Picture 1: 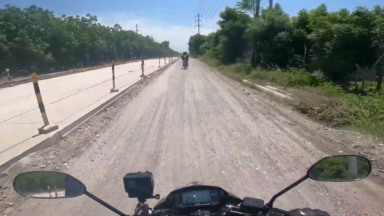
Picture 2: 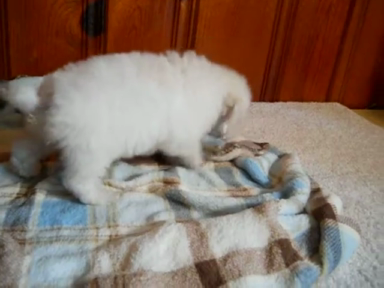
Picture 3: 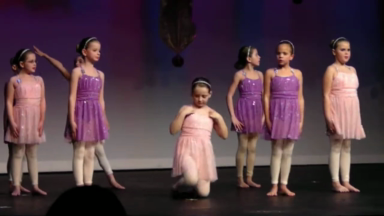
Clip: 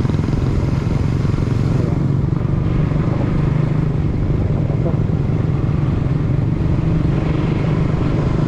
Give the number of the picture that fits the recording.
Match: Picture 1